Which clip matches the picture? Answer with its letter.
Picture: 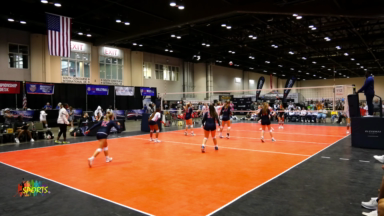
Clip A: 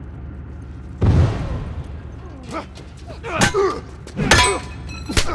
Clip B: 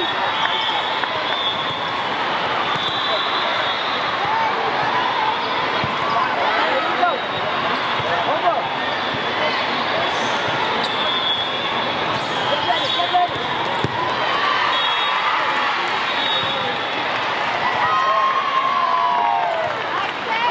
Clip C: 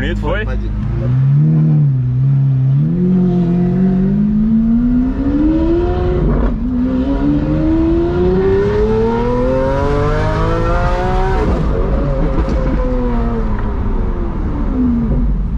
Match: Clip B